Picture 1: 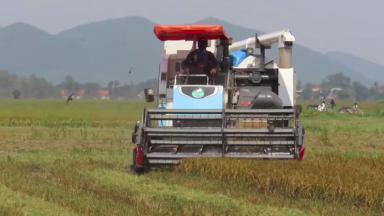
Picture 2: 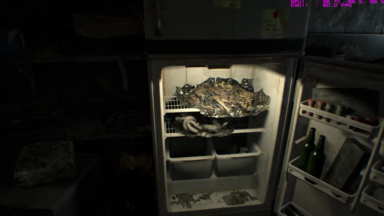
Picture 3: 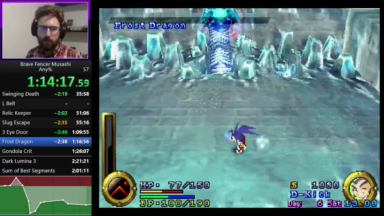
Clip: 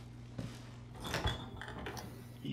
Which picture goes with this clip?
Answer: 2